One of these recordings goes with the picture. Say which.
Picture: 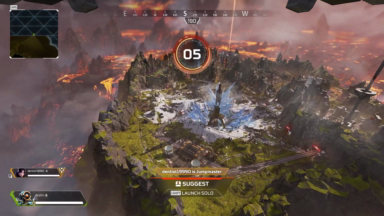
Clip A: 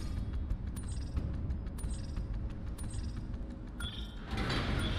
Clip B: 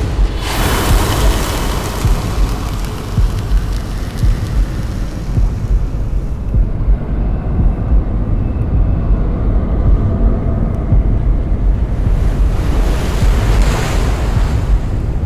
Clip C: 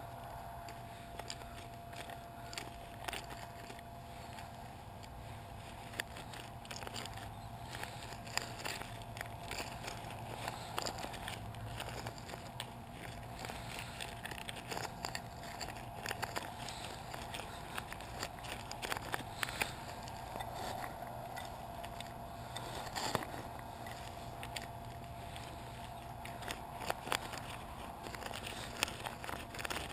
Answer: A